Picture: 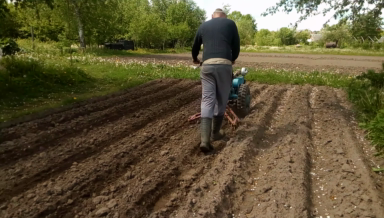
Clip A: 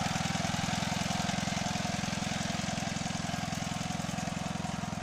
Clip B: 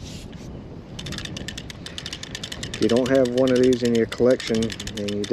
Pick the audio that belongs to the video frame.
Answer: A